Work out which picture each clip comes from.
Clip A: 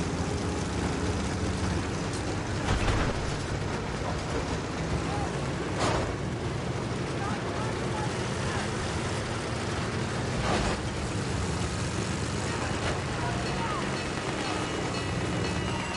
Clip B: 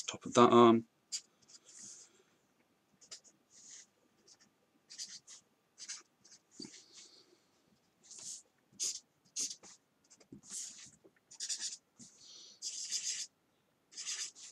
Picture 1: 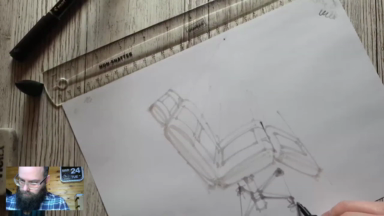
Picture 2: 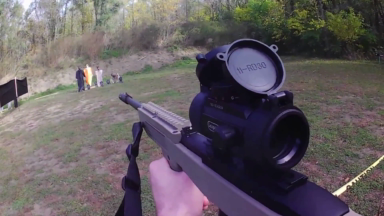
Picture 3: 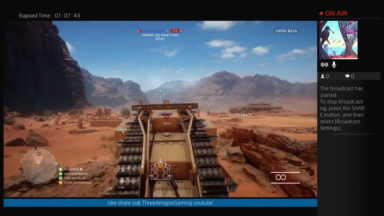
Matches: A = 3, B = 1